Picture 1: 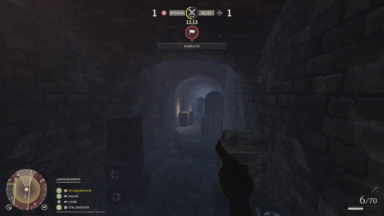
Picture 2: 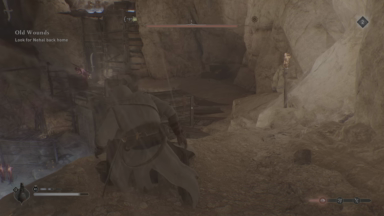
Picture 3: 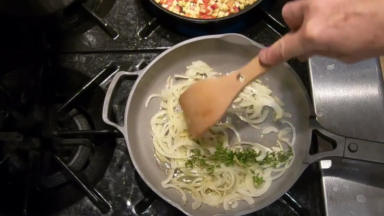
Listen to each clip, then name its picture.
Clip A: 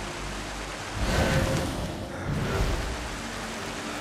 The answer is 2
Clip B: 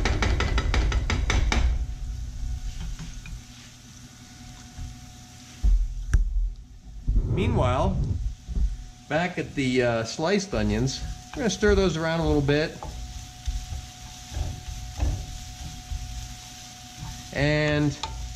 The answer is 3